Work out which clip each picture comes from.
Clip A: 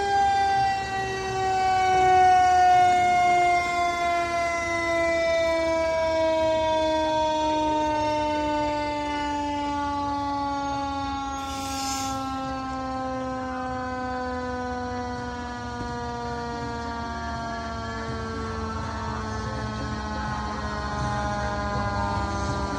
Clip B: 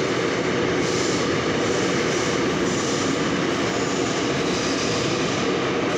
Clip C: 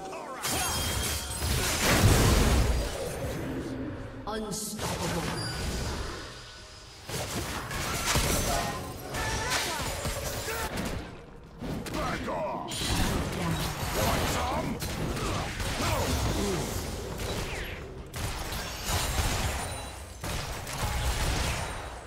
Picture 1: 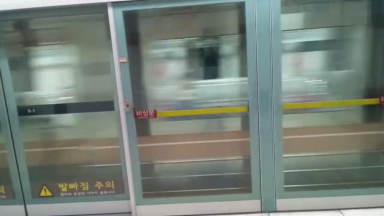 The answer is B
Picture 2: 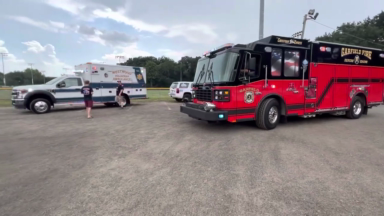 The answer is A